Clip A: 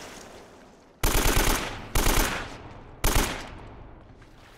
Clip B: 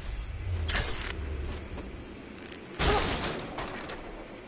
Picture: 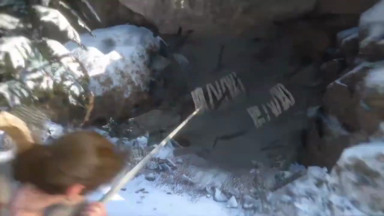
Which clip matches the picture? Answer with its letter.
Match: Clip B